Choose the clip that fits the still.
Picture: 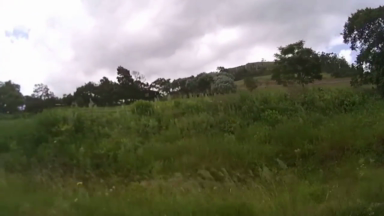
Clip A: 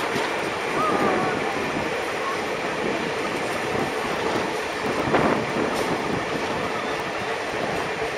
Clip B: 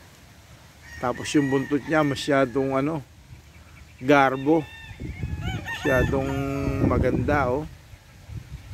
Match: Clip A